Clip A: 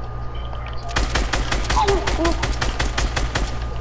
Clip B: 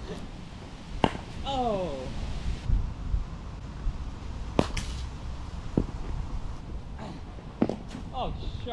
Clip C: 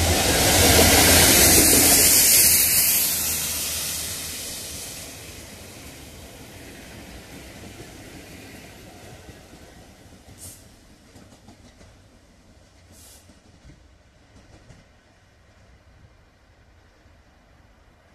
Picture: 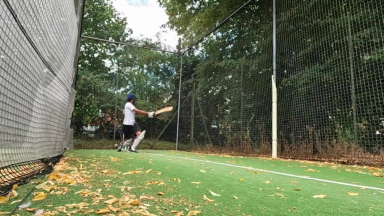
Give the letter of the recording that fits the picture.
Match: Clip B